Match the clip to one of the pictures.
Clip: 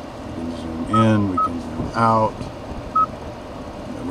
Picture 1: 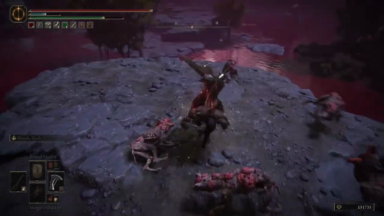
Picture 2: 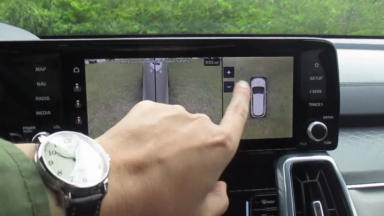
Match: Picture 2